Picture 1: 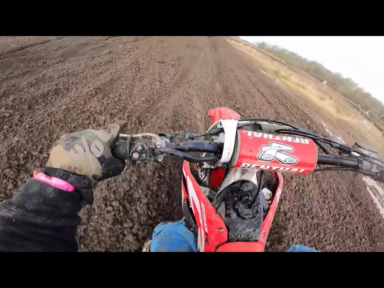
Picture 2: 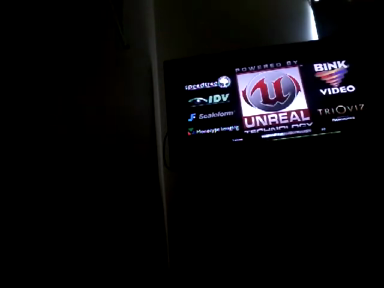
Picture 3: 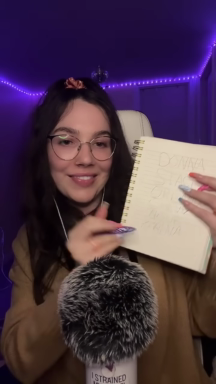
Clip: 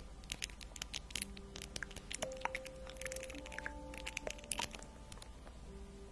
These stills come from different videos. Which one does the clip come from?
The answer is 3